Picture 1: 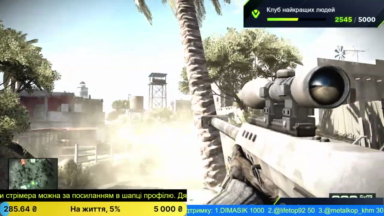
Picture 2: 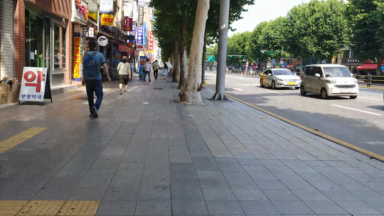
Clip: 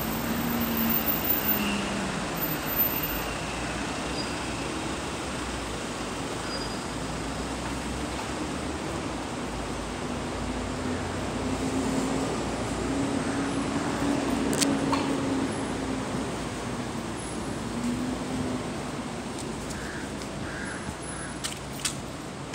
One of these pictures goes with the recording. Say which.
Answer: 2